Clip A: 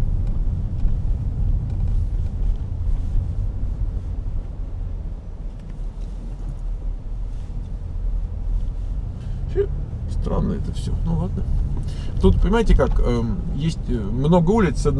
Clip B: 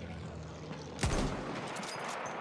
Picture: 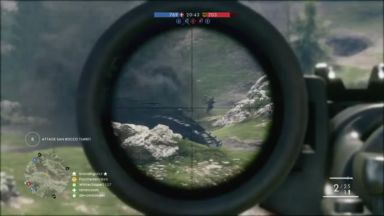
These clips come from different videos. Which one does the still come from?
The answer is B